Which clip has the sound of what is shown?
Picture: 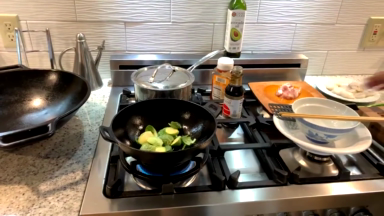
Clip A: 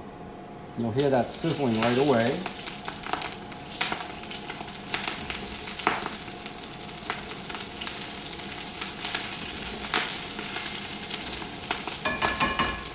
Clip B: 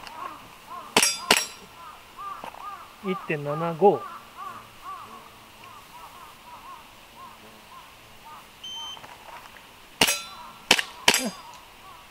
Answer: A